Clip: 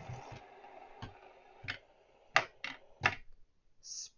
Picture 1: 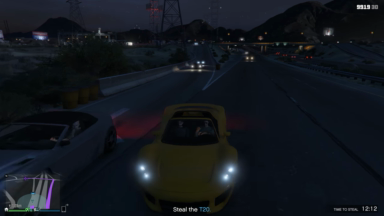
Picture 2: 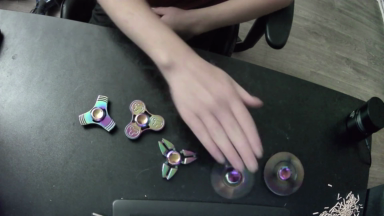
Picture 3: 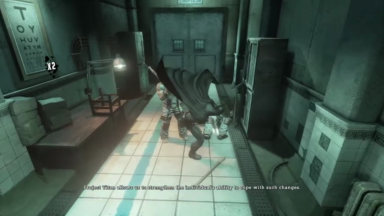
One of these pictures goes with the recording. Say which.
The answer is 2